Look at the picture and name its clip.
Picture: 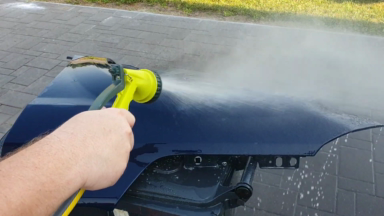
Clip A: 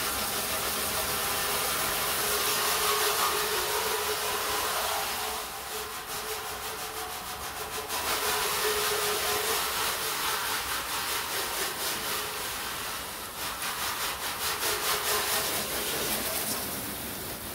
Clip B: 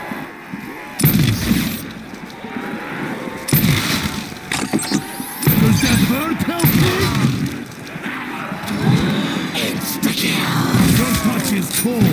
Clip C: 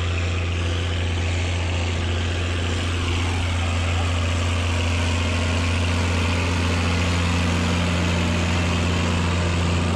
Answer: A